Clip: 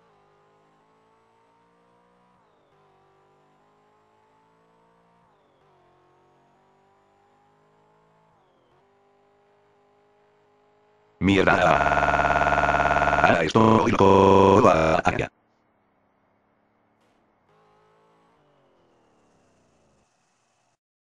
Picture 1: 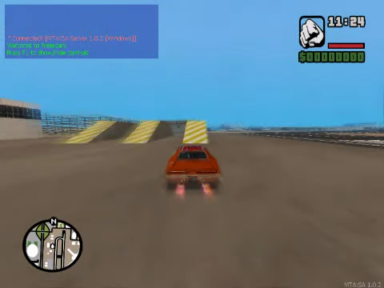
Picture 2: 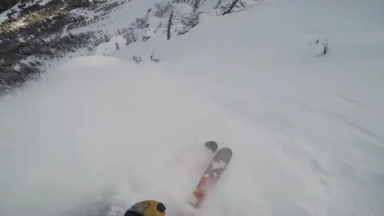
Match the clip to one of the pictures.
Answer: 1